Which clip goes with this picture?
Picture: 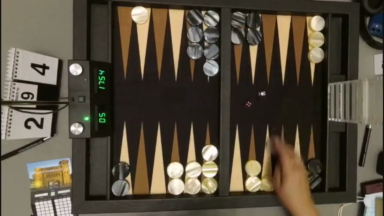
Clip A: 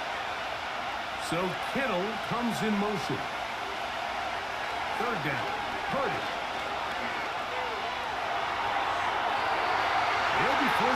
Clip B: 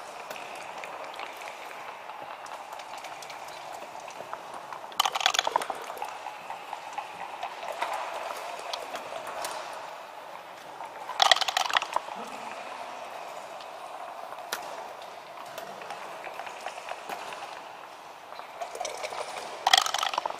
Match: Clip B